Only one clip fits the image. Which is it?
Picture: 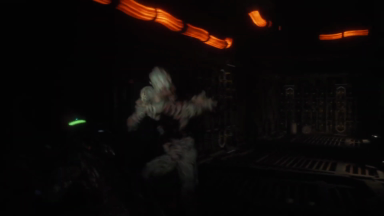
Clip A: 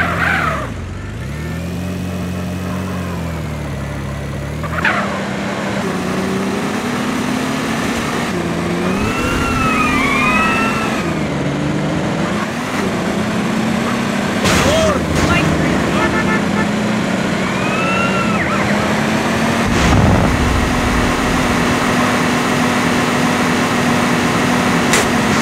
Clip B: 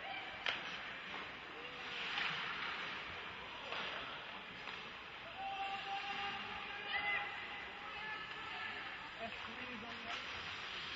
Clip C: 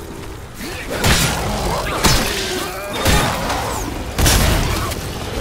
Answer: C